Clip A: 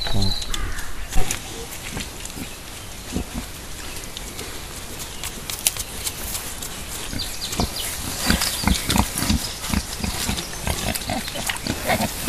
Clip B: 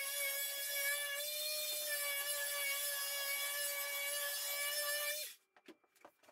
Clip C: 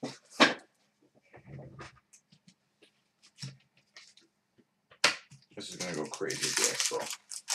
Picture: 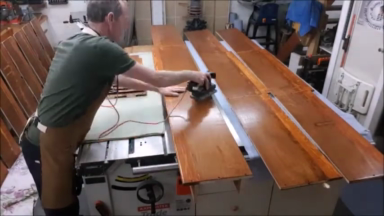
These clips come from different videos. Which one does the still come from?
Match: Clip B